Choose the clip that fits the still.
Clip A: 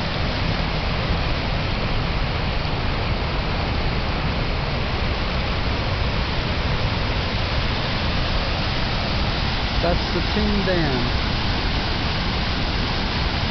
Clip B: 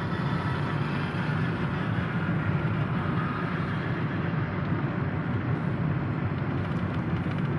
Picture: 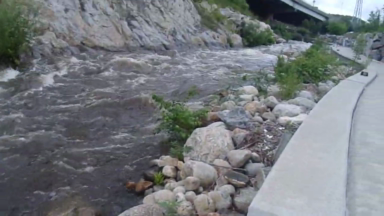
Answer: A